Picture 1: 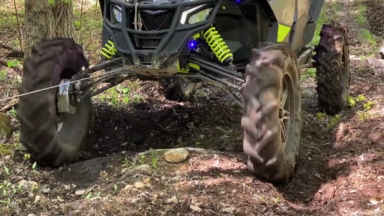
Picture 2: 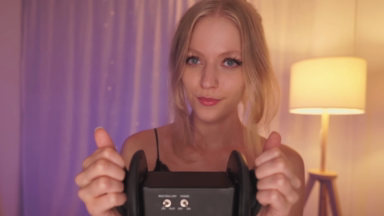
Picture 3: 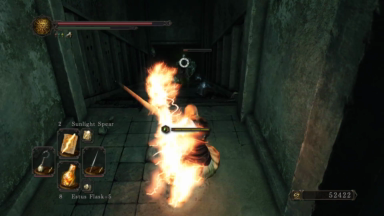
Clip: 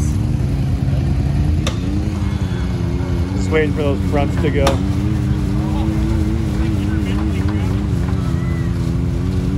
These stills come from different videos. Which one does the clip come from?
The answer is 1